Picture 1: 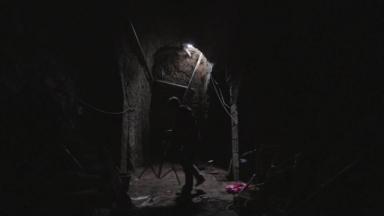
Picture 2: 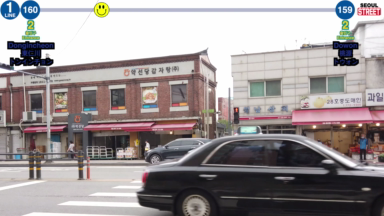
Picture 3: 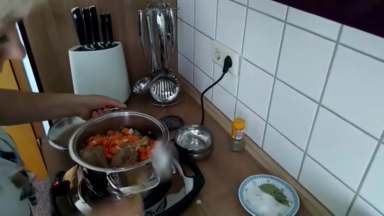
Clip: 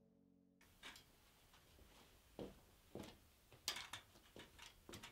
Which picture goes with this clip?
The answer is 1